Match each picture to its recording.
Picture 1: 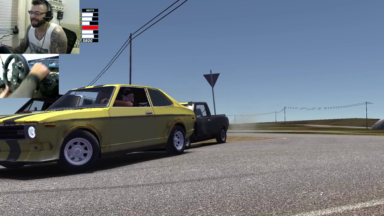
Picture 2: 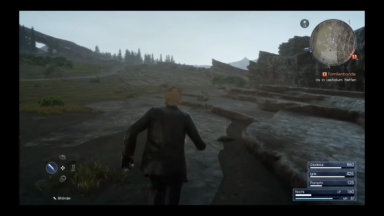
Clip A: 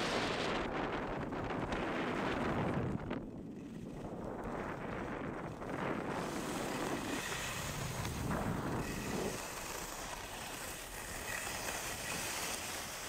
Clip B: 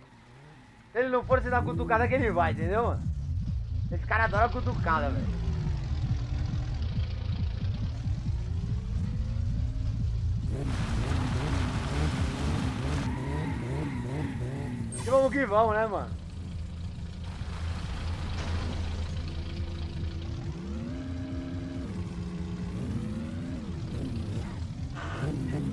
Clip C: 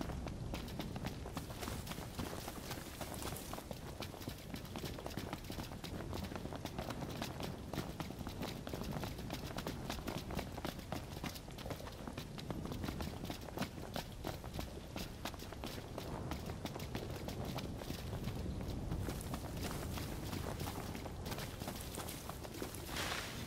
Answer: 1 B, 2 C